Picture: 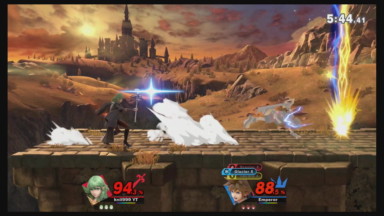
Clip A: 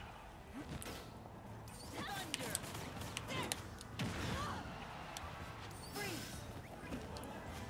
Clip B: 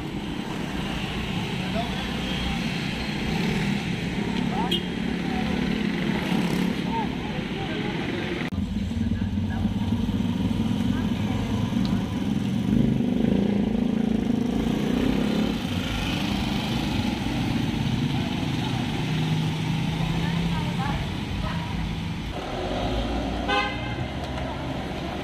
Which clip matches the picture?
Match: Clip A